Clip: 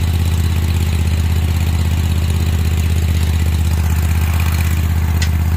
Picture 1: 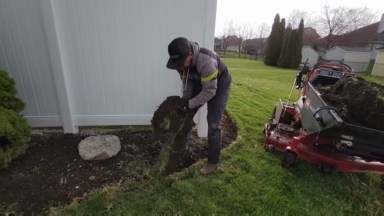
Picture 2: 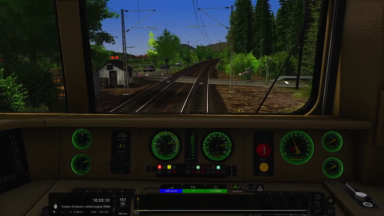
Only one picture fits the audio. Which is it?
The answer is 1